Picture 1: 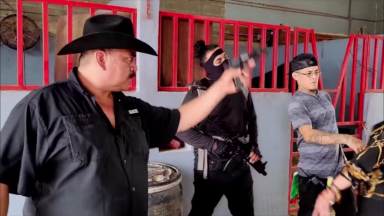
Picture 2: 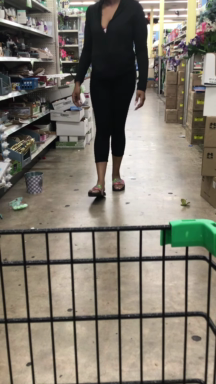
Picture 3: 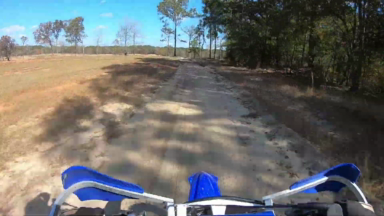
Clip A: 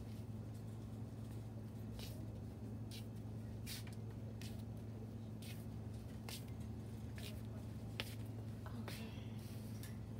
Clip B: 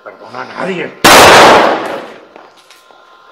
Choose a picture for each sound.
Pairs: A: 2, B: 1